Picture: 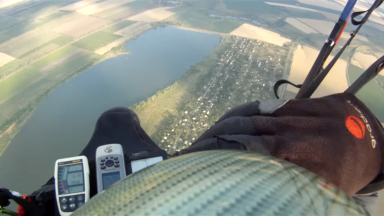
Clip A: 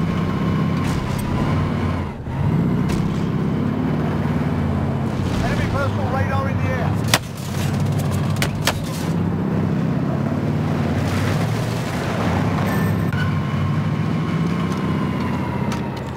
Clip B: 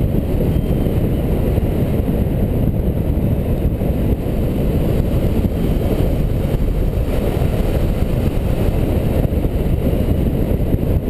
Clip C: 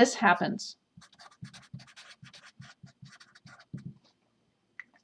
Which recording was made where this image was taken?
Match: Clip B